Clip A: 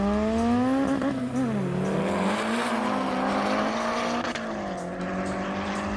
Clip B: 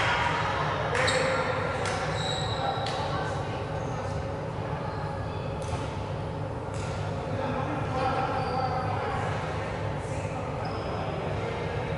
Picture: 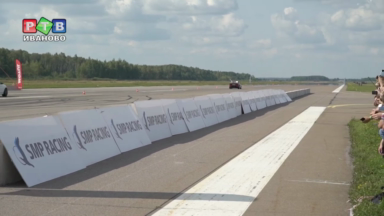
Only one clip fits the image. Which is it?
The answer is A